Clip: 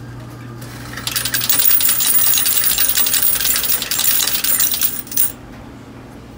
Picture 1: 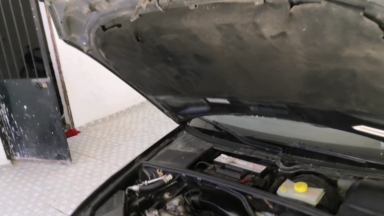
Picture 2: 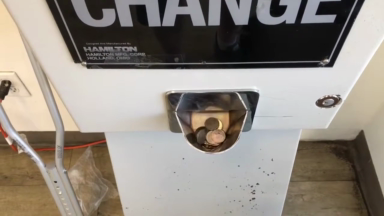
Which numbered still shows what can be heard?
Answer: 2